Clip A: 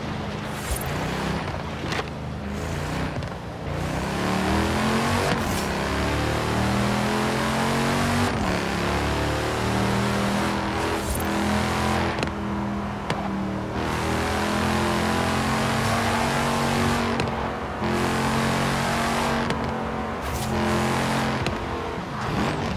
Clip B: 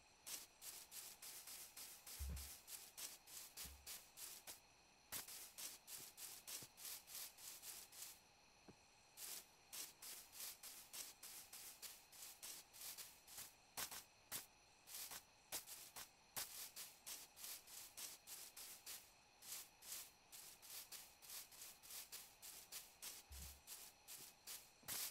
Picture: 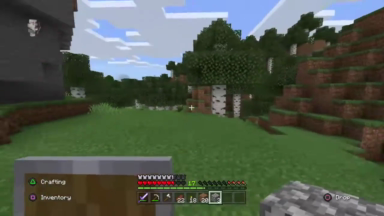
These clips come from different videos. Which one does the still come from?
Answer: B